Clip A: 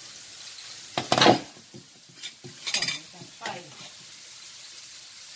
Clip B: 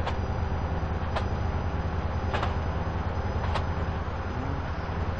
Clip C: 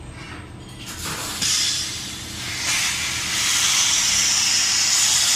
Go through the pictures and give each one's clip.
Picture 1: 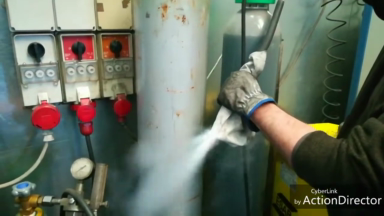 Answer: C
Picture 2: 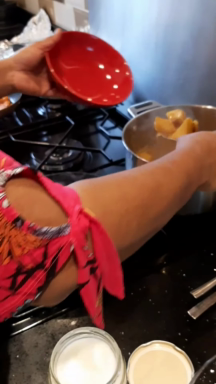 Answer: A